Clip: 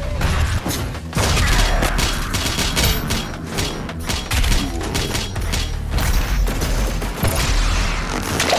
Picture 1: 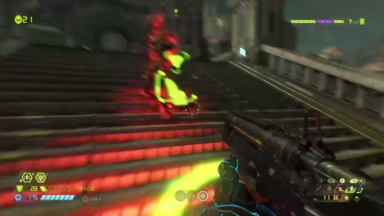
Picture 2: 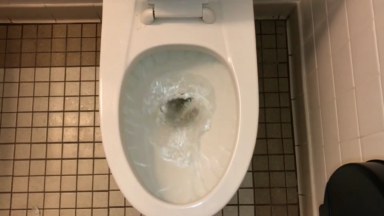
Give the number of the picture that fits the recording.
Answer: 1